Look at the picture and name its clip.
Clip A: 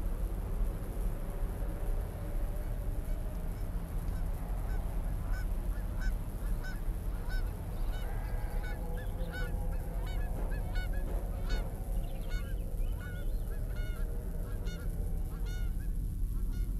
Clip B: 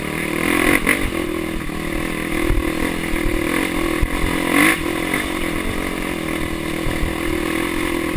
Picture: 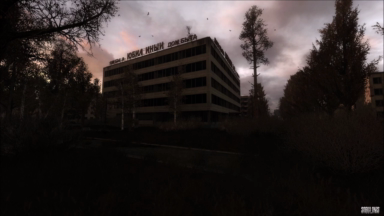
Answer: A